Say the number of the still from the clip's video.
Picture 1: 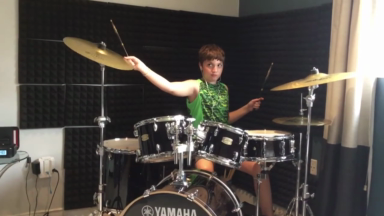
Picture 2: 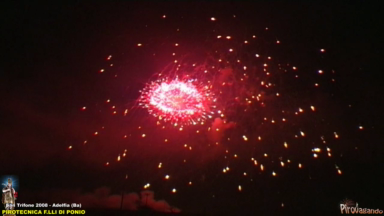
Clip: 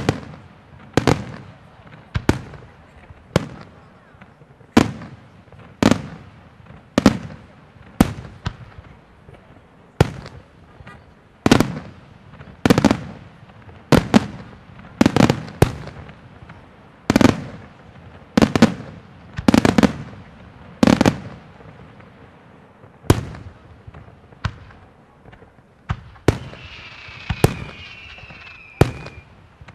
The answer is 2